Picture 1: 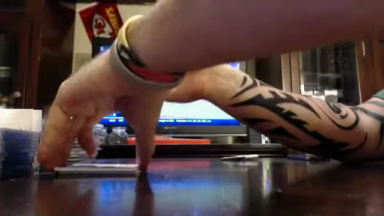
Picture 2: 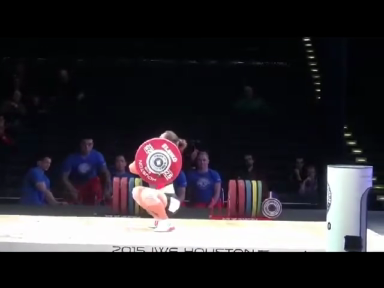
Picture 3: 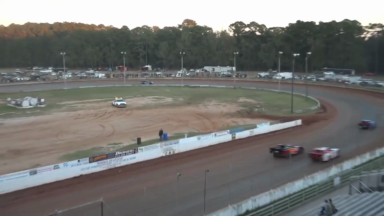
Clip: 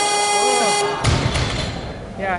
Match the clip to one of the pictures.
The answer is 2